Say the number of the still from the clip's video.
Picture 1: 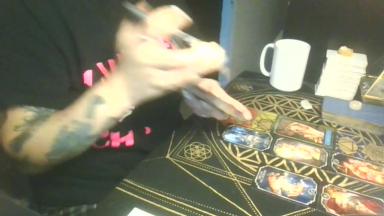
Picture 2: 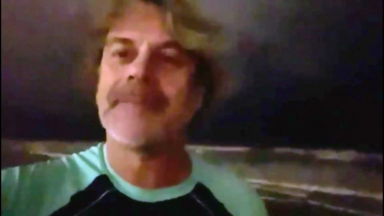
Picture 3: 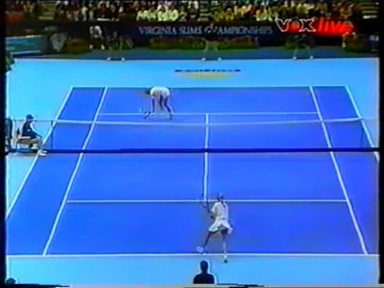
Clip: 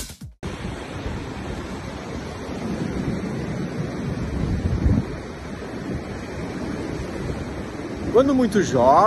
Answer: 2